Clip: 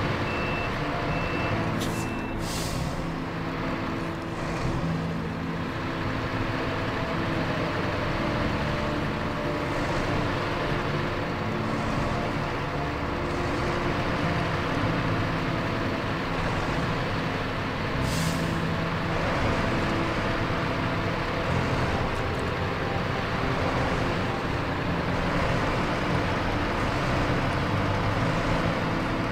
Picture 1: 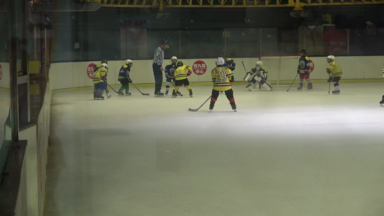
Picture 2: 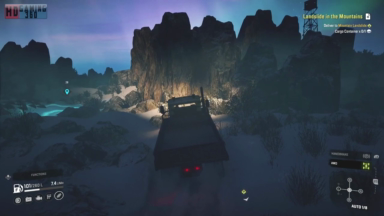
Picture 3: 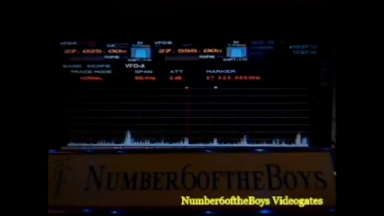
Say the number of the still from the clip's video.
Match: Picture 2